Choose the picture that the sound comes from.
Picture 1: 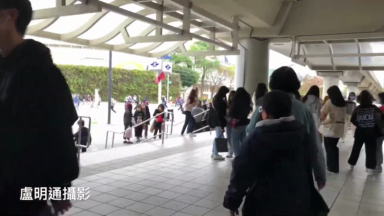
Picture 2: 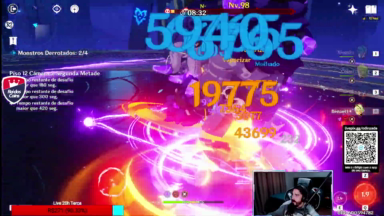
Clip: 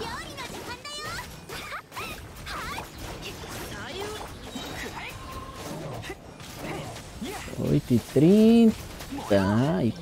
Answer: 2